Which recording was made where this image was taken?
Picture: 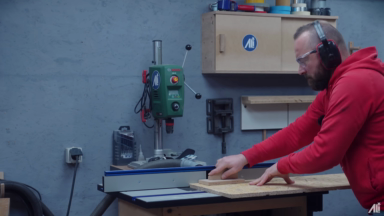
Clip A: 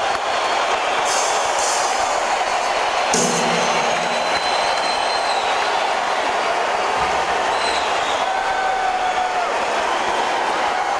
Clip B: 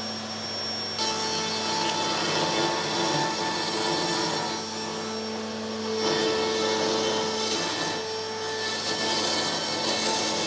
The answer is B